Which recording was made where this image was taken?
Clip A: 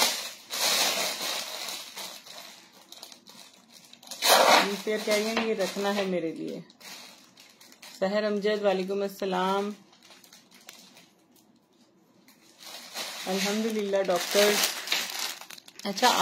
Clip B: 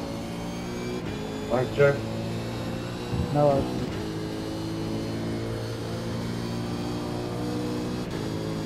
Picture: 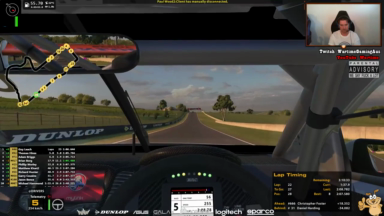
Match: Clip B